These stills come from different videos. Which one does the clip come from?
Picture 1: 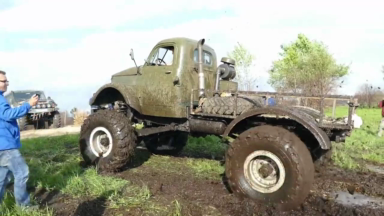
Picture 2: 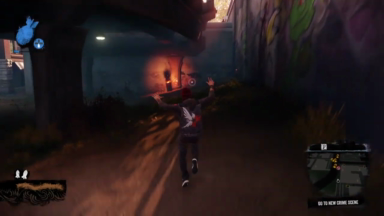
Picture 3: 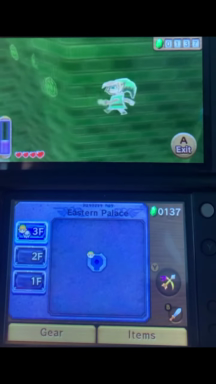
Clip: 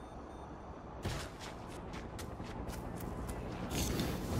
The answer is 2